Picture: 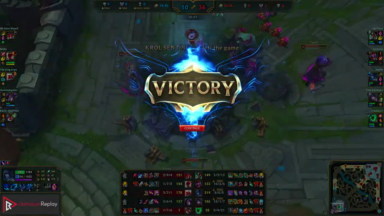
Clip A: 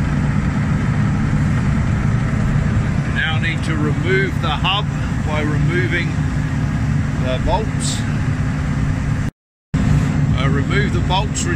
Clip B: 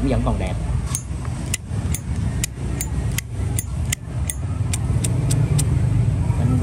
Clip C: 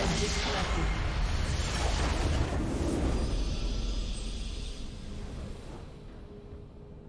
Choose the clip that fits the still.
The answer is C